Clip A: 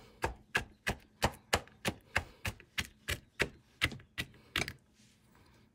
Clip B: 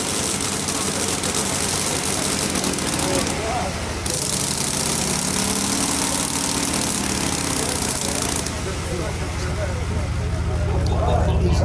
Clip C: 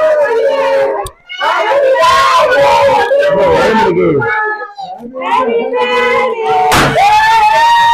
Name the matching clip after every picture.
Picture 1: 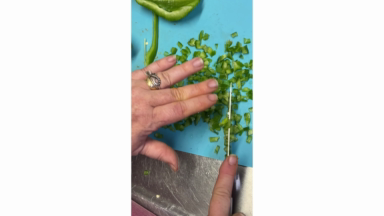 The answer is A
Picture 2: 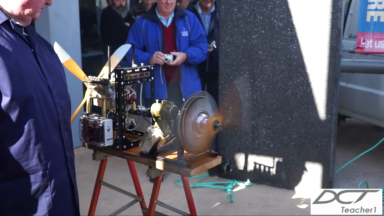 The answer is B